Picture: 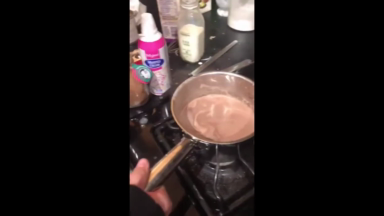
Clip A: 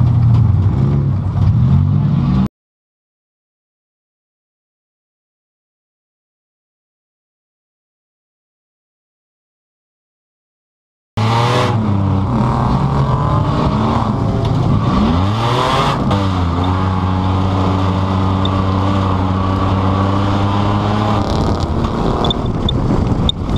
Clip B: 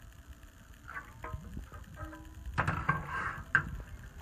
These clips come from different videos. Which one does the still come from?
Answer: B